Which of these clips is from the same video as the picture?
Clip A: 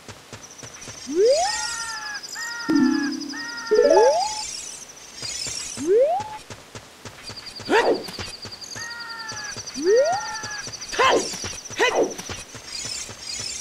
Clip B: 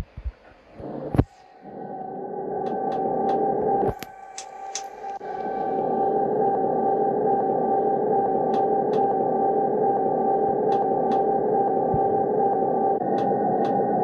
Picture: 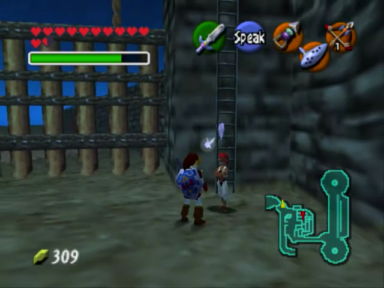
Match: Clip A